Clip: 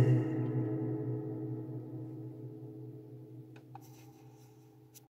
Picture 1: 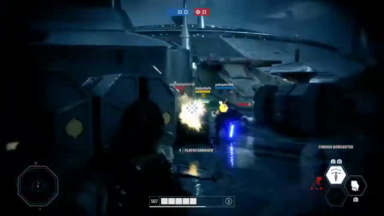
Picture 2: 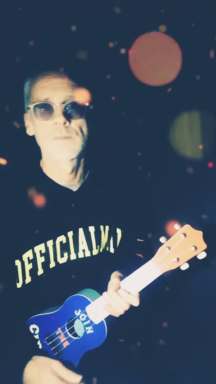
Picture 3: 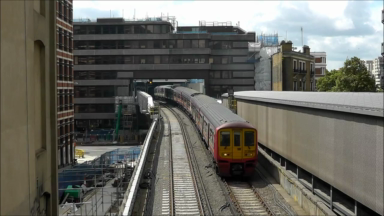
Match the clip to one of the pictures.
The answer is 2